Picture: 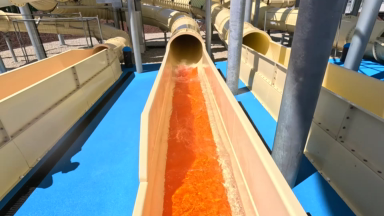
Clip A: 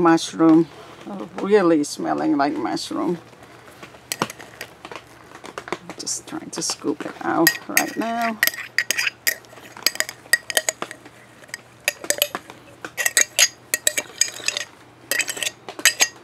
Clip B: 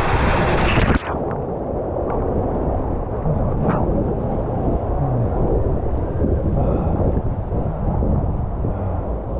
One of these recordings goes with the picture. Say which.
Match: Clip B